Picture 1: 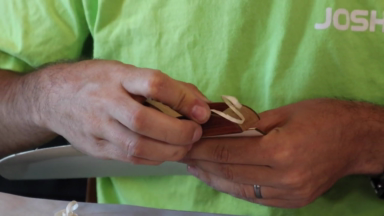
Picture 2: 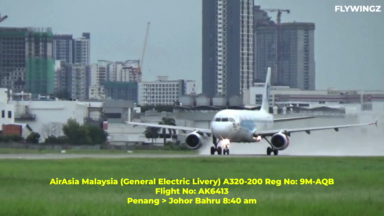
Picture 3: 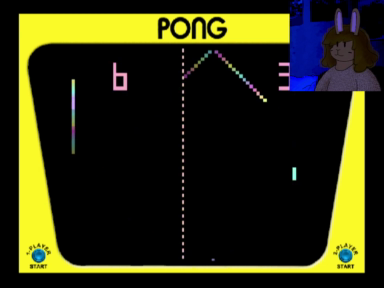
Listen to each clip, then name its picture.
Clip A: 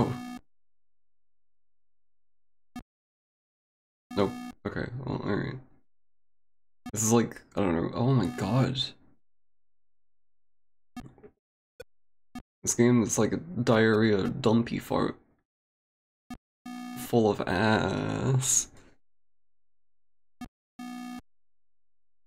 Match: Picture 3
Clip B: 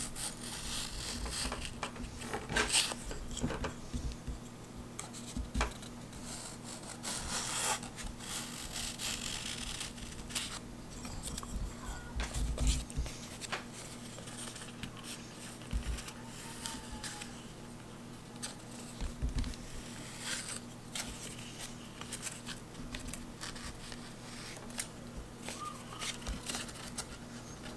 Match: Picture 1